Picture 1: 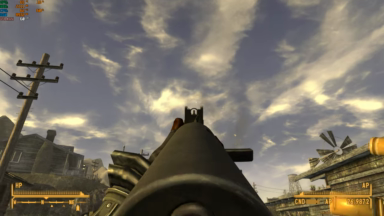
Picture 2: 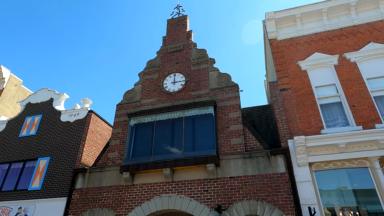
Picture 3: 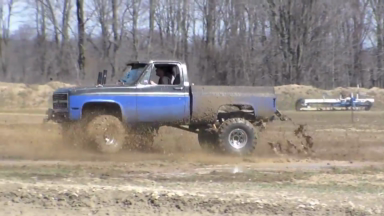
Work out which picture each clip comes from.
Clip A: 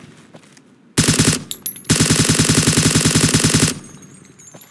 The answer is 1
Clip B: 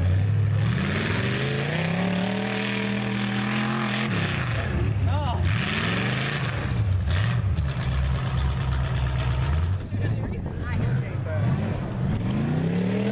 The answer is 3